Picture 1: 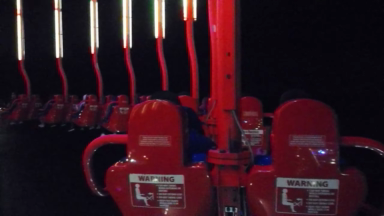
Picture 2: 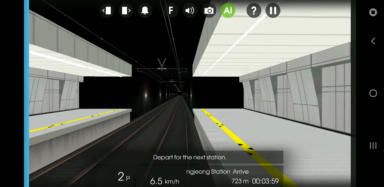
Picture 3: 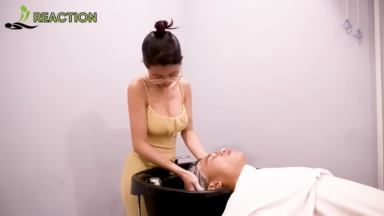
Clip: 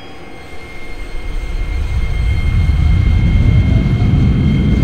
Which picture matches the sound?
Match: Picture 2